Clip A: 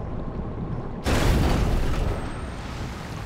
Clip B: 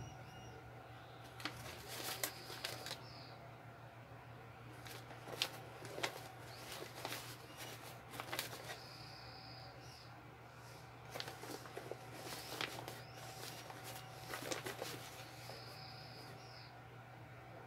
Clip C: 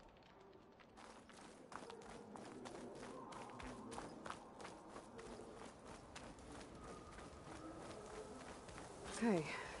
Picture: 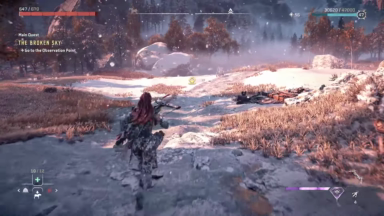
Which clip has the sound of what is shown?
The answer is C